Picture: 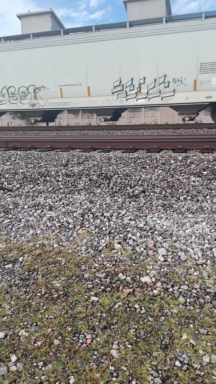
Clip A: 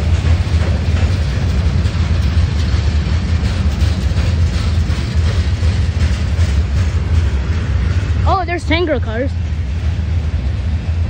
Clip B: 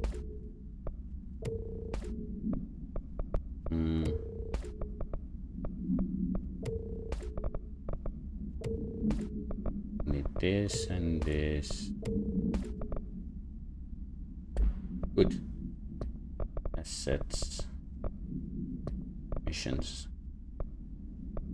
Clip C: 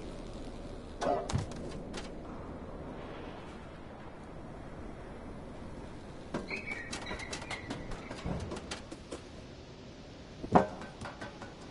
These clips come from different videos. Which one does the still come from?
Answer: A